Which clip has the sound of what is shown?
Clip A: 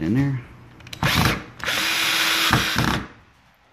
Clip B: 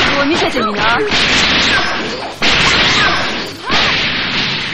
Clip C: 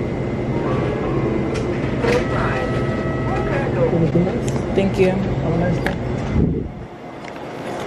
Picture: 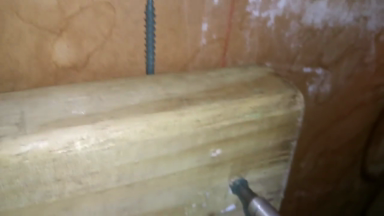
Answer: A